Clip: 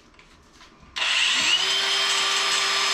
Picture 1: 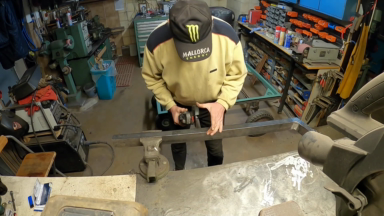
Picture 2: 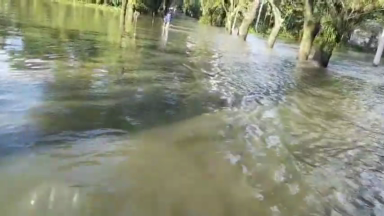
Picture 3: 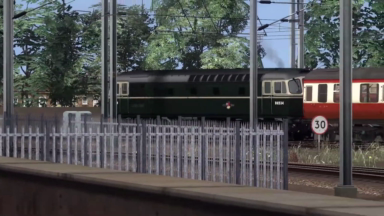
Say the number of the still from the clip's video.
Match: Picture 1